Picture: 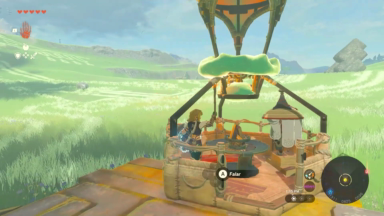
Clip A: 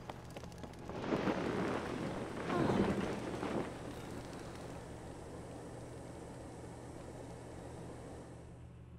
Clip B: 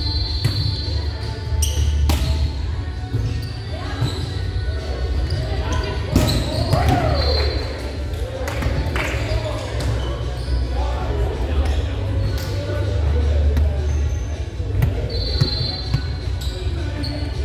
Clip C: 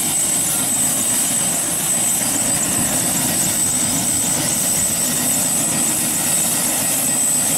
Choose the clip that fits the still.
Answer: A